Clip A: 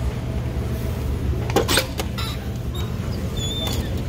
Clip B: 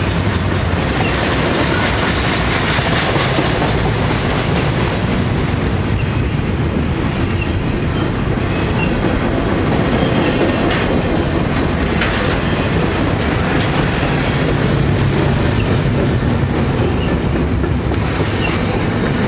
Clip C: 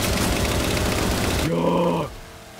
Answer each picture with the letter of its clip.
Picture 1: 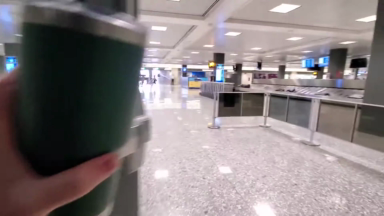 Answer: A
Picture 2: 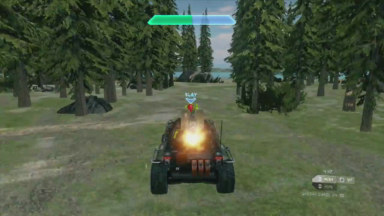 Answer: C